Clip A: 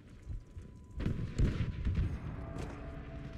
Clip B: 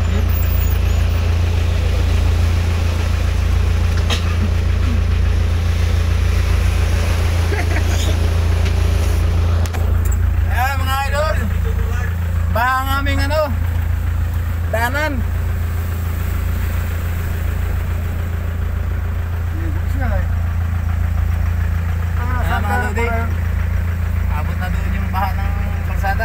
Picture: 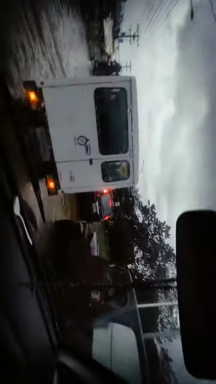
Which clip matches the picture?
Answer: B